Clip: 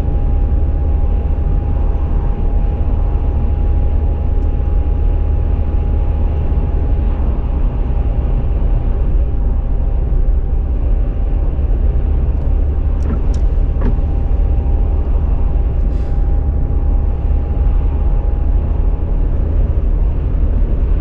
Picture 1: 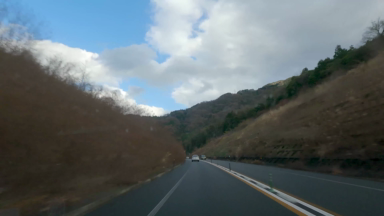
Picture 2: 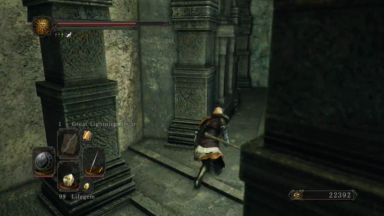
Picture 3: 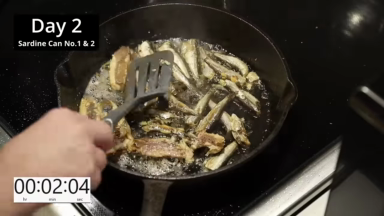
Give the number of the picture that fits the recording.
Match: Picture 1